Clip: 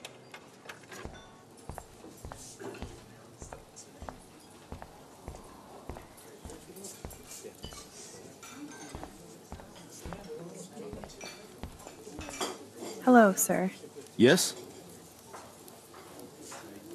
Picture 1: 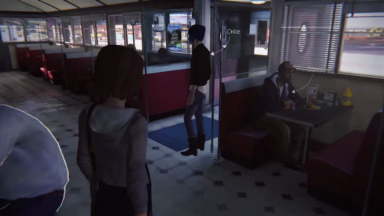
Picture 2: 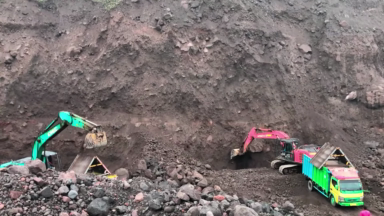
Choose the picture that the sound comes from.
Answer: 1